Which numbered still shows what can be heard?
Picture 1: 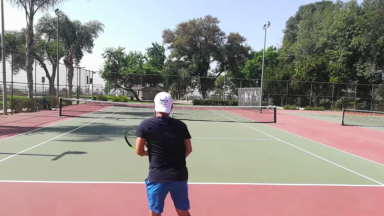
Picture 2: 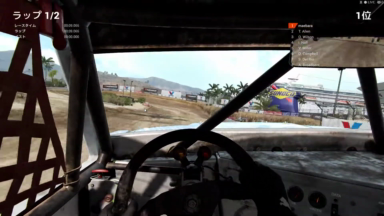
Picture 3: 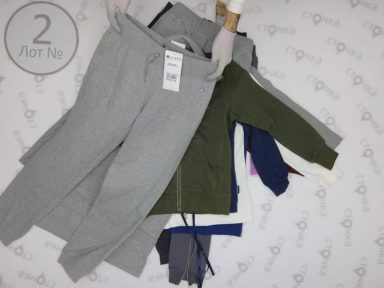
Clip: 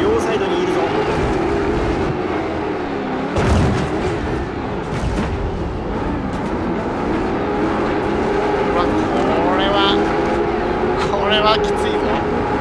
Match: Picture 2